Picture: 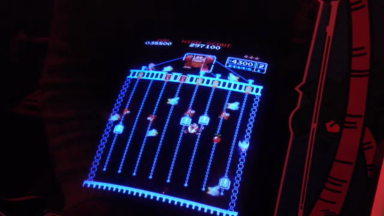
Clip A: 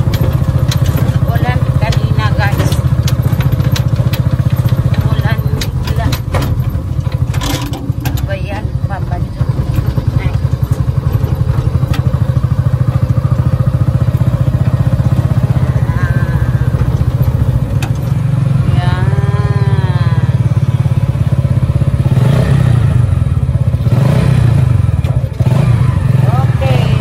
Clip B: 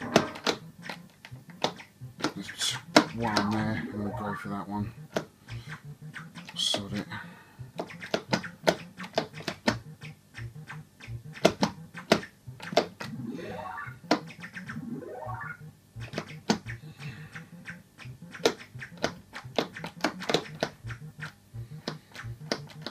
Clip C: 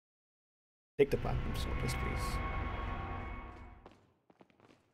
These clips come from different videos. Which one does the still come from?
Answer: B